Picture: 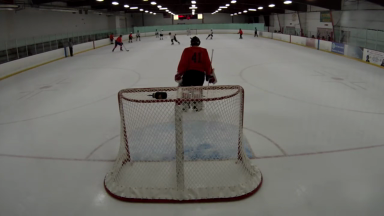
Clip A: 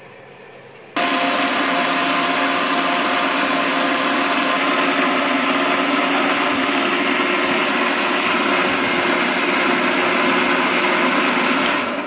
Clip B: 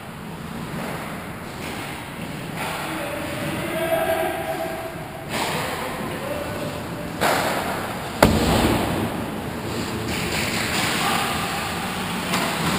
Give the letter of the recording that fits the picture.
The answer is B